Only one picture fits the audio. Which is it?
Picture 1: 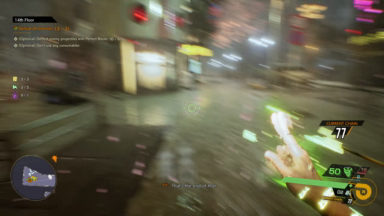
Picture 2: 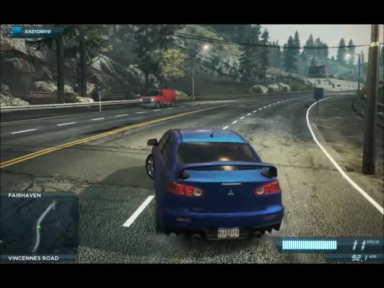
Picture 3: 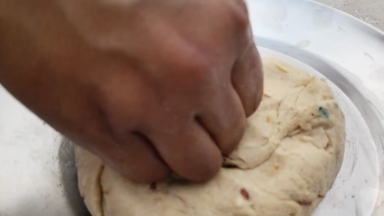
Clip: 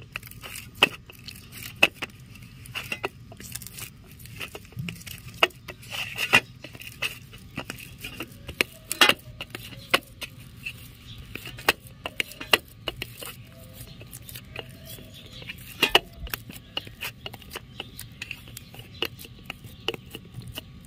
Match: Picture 3